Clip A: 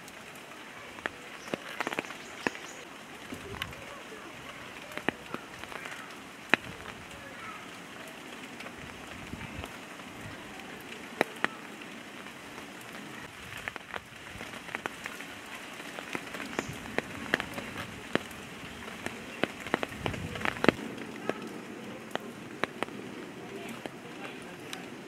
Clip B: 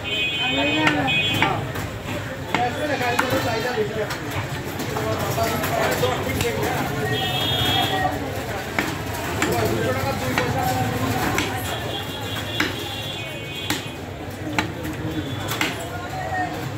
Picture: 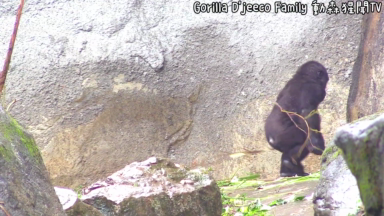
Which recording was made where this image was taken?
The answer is A